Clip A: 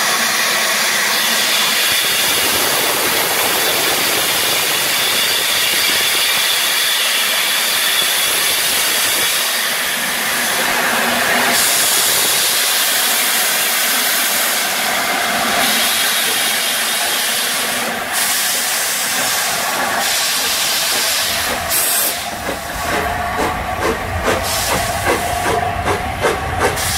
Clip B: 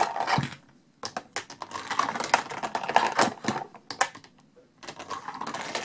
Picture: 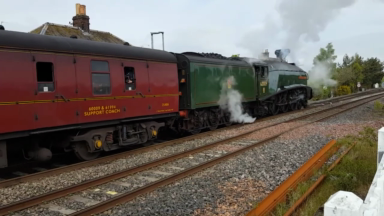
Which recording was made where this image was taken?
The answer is A